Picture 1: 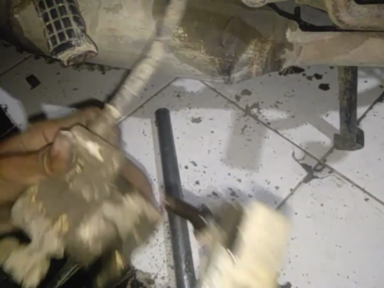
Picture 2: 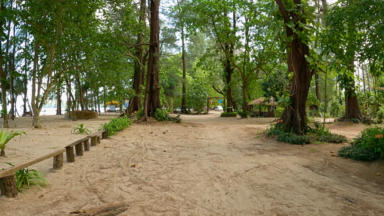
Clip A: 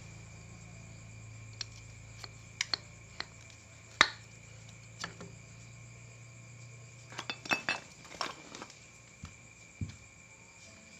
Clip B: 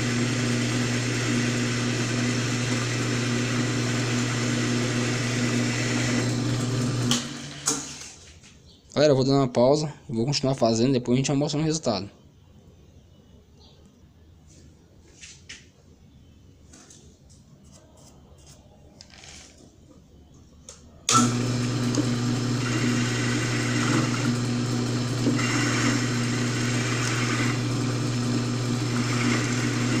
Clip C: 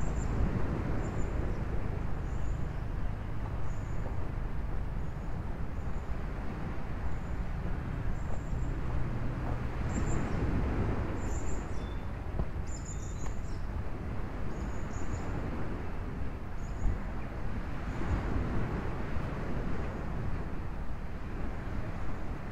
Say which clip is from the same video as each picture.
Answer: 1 A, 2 C